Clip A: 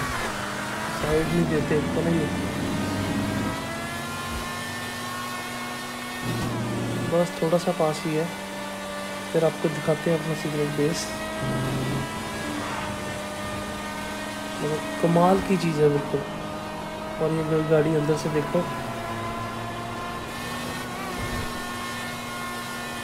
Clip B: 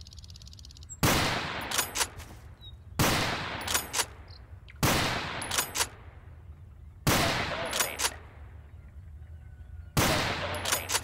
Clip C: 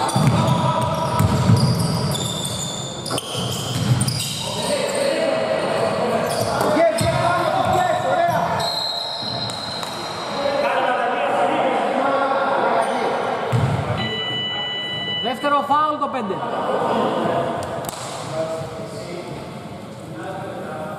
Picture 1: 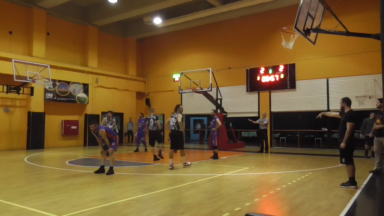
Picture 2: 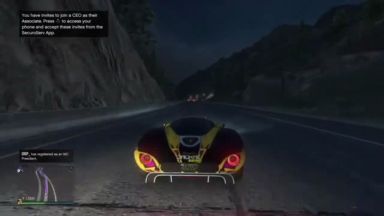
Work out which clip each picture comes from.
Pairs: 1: C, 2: A